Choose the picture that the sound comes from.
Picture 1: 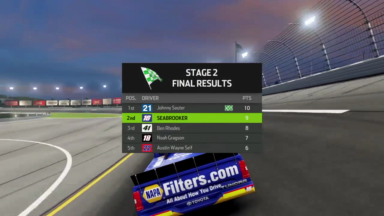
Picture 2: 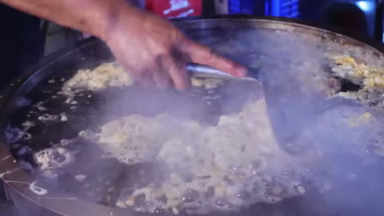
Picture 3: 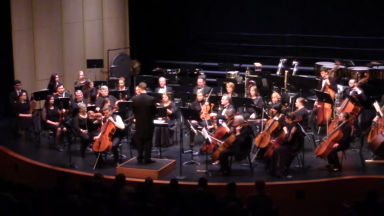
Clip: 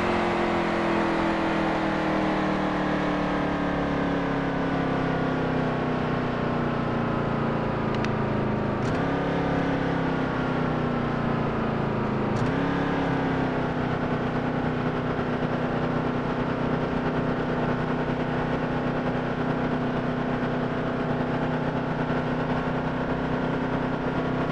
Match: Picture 1